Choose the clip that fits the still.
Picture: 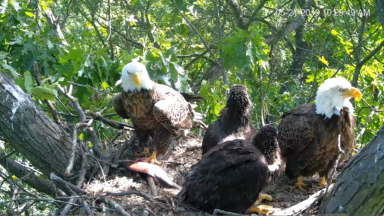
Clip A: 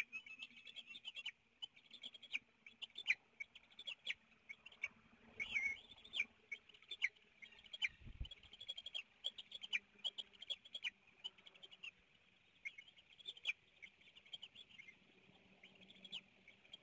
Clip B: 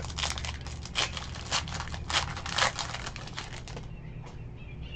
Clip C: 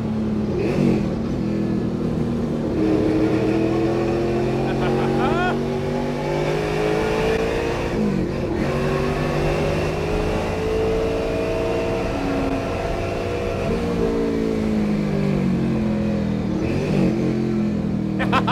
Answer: A